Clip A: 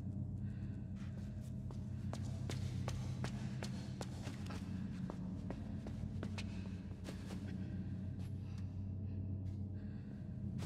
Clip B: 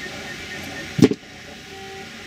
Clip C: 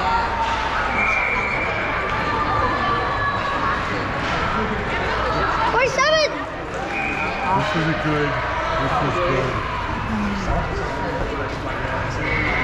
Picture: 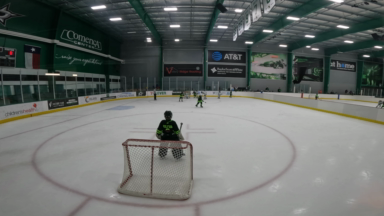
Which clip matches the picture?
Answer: C